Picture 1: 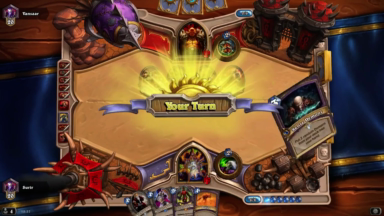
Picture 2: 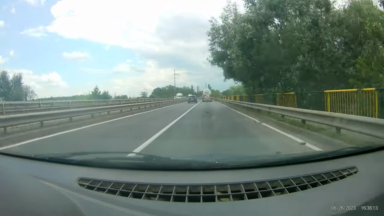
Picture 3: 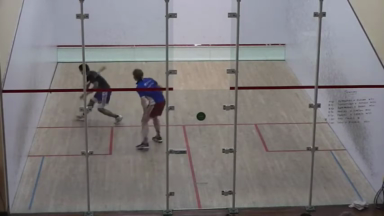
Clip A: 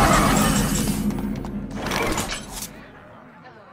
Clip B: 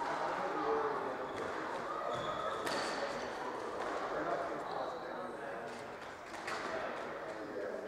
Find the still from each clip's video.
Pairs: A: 1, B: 3